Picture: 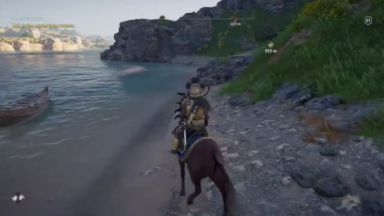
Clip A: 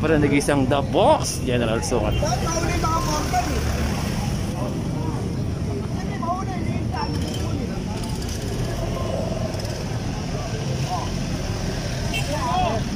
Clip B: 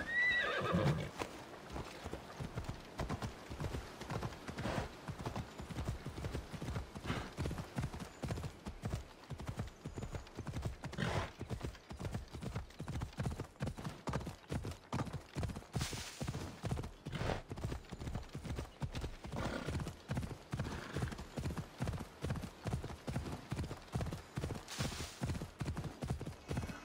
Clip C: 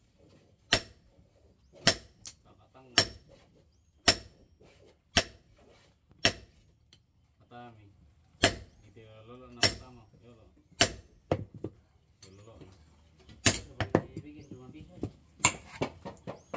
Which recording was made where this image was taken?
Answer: B